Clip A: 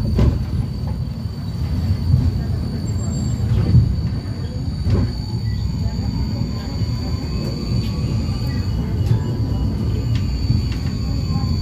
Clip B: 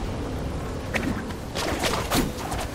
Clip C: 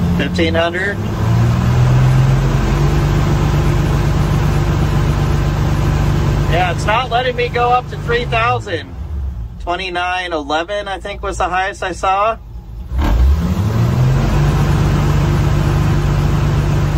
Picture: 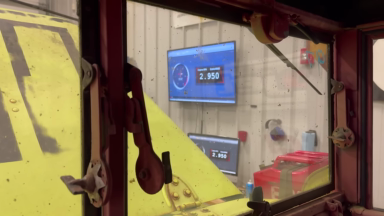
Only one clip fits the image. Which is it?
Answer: C